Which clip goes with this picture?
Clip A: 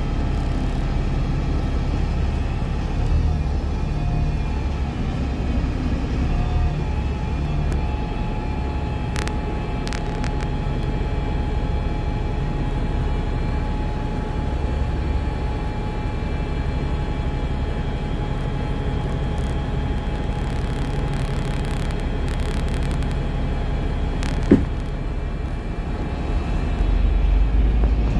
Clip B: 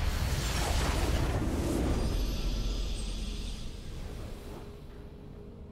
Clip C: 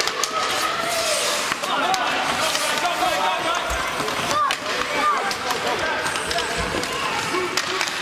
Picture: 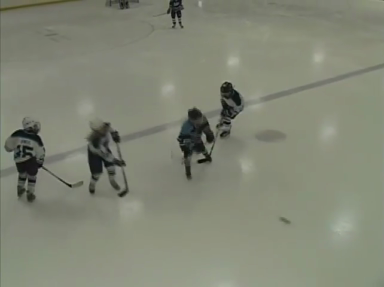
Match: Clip C